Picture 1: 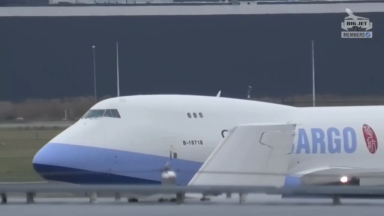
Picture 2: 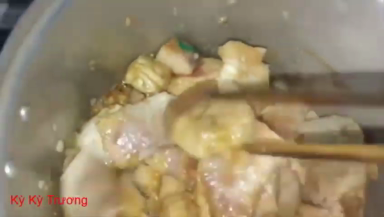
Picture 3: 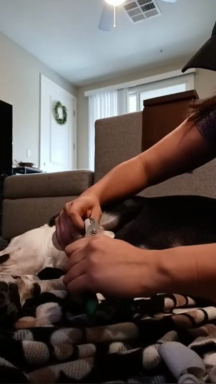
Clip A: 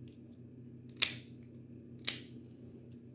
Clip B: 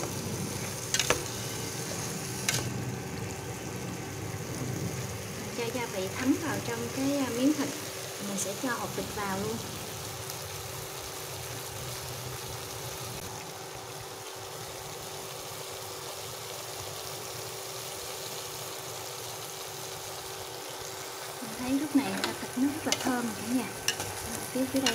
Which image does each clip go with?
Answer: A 3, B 2